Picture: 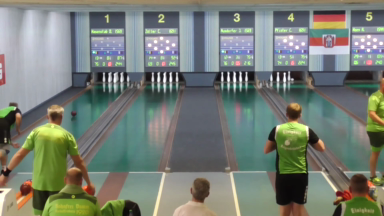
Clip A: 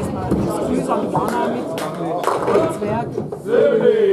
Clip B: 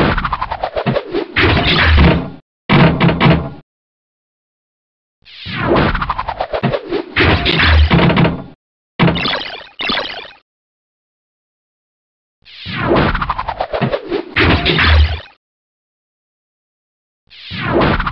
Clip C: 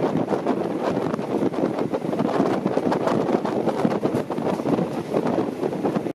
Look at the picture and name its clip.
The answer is A